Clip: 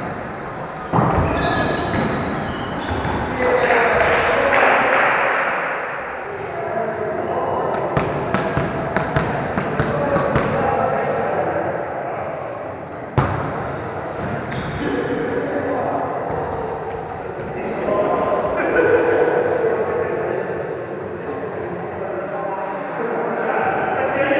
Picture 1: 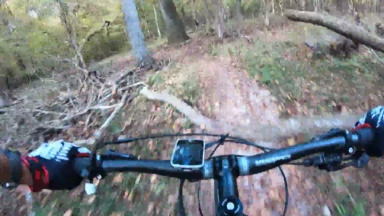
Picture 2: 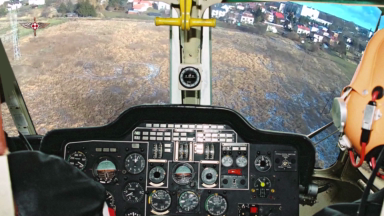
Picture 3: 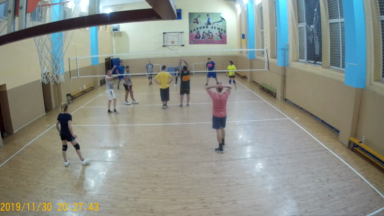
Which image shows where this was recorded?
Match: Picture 3